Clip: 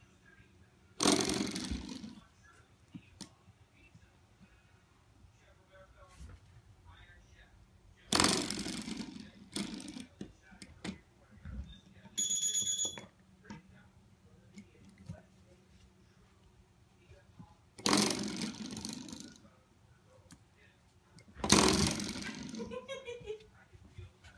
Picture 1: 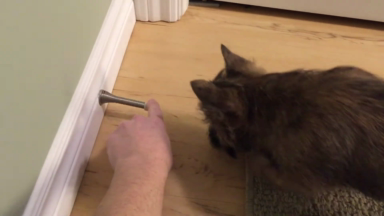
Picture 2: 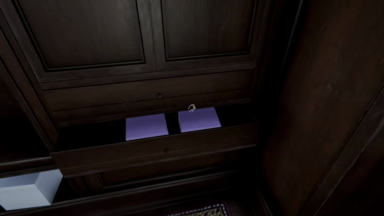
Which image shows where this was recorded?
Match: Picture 1